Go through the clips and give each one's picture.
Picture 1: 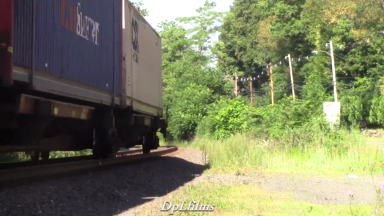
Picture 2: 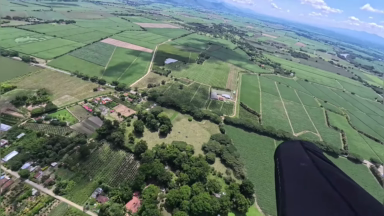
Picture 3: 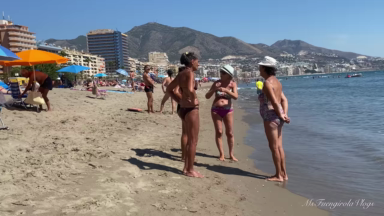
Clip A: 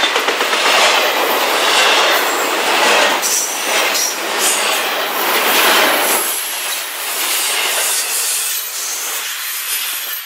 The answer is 1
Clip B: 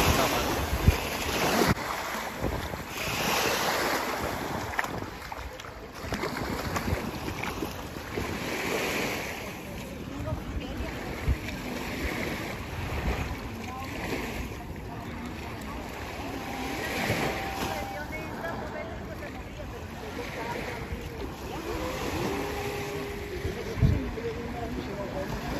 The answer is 3